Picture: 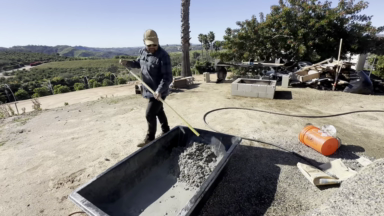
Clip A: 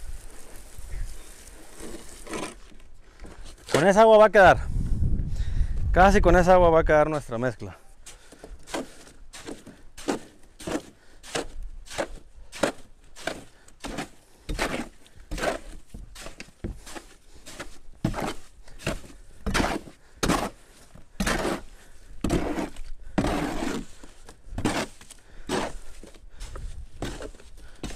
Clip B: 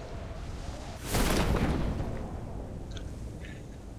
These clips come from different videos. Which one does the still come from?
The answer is A